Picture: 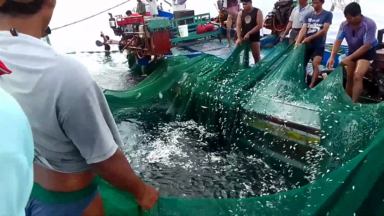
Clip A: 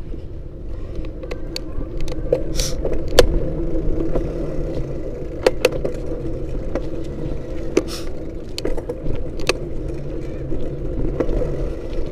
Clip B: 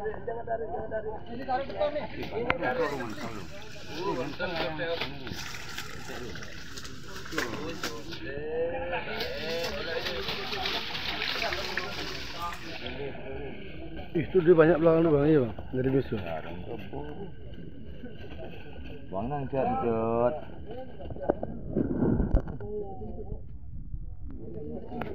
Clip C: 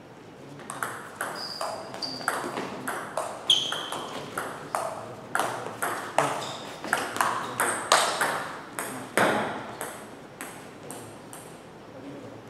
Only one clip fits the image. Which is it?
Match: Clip B